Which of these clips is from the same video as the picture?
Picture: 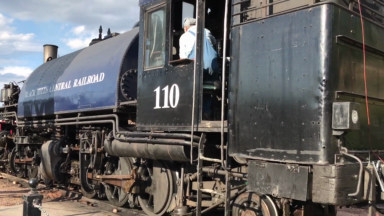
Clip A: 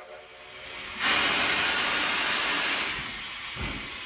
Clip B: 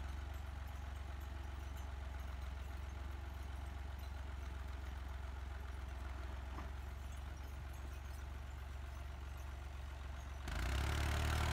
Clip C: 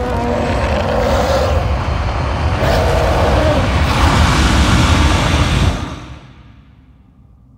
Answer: A